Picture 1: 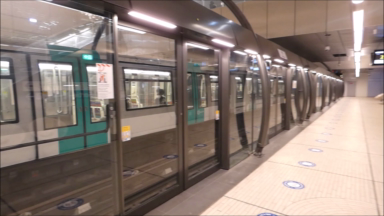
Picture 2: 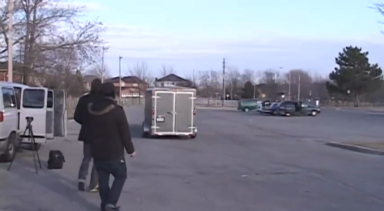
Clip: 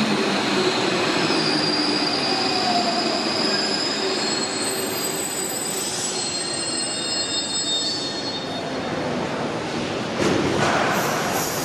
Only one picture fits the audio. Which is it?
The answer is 1